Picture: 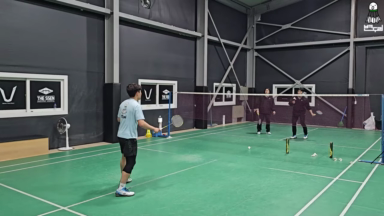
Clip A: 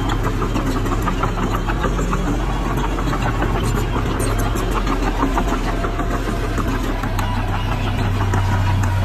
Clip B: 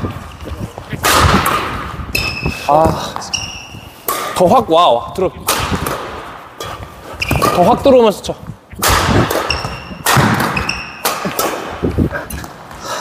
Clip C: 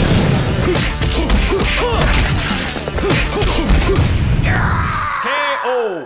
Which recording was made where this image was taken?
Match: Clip B